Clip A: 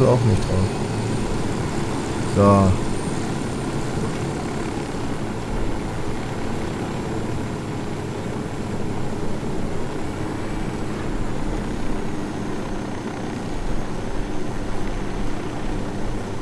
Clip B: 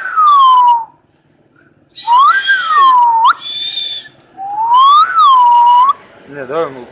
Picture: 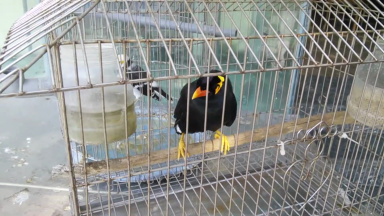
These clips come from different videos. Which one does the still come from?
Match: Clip B